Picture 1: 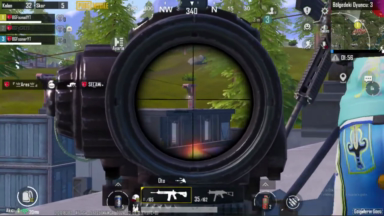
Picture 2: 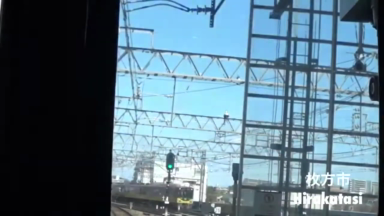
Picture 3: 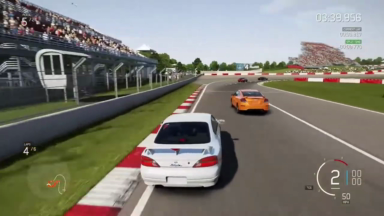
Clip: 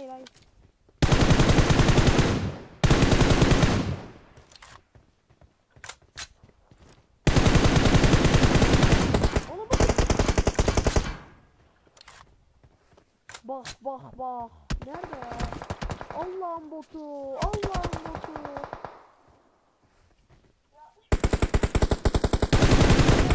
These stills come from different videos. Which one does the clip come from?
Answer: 1